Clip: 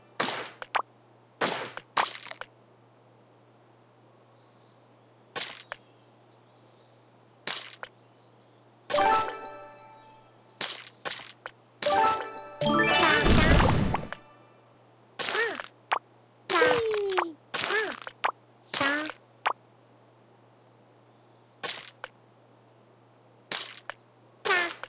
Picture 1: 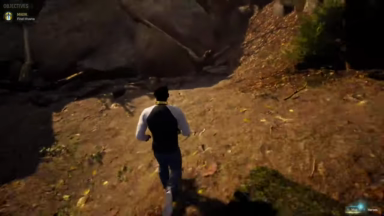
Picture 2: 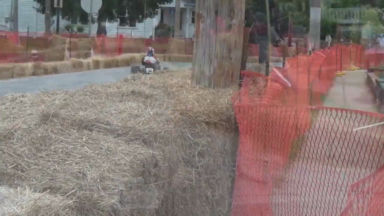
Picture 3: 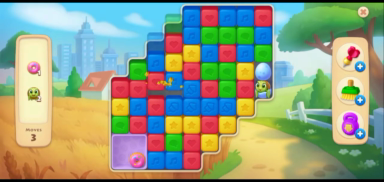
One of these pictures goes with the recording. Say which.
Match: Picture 3